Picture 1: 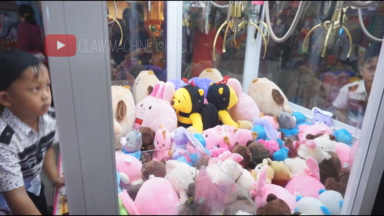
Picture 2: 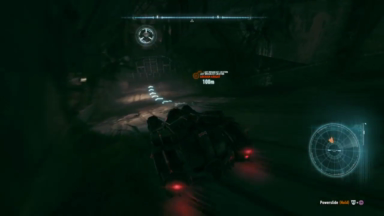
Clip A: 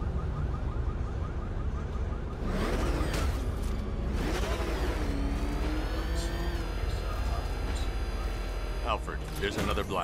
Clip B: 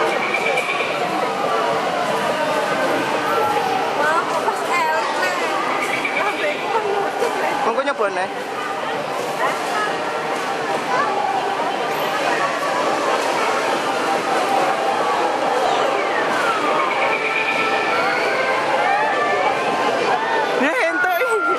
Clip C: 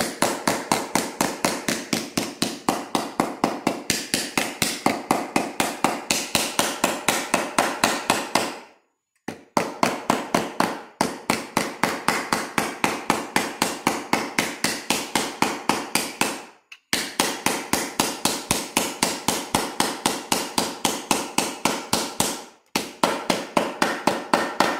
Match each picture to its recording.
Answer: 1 B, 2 A